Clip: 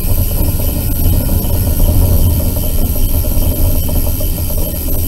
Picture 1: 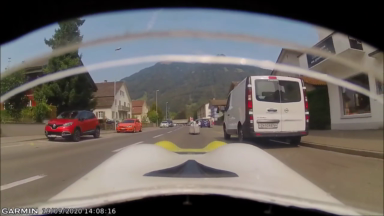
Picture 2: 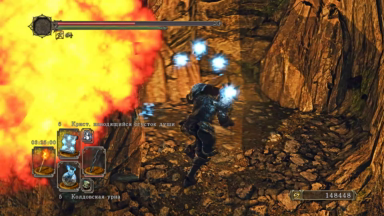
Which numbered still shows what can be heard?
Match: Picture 1